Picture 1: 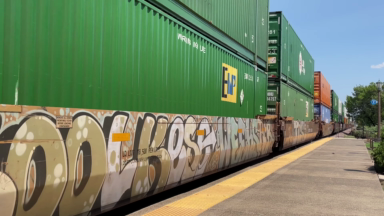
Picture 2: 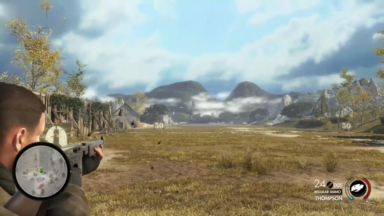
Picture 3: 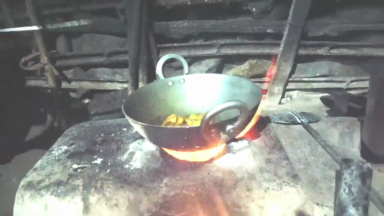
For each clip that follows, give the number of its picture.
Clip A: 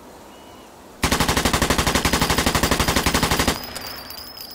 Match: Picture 2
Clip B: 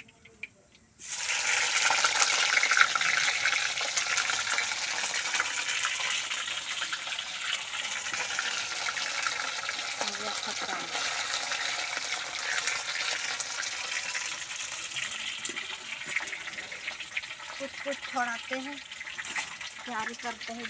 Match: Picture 3